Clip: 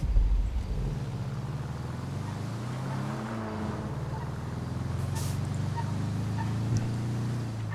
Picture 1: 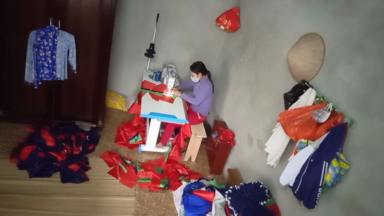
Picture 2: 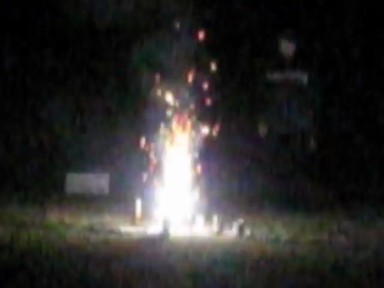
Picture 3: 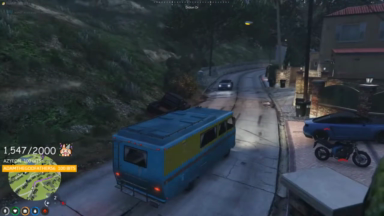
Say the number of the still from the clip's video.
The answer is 3